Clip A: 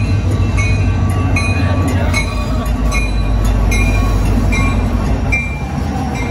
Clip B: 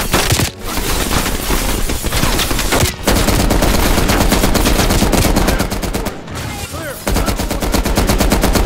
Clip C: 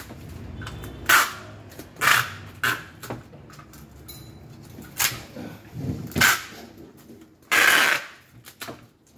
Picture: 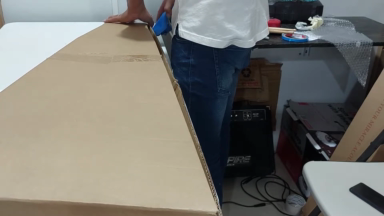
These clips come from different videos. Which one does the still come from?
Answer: C